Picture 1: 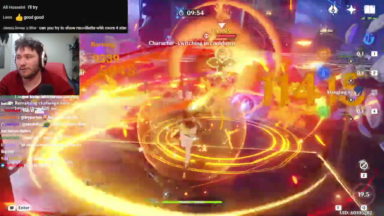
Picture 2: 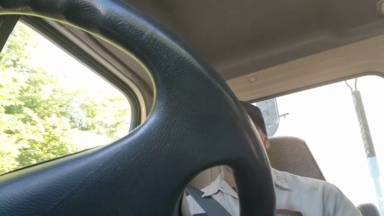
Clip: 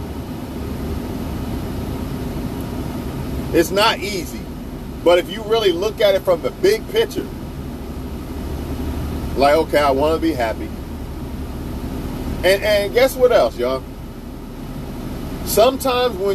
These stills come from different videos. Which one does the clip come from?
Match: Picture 2